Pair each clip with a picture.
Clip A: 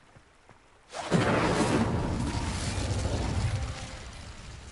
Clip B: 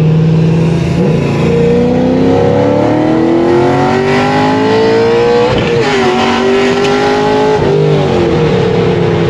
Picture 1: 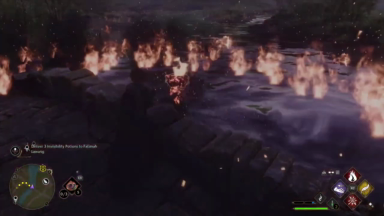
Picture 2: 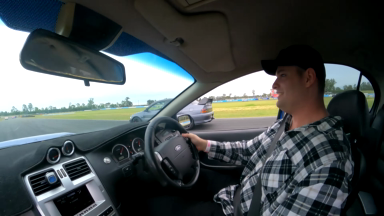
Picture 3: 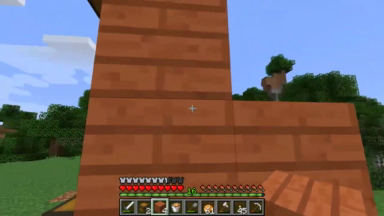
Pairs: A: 1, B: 2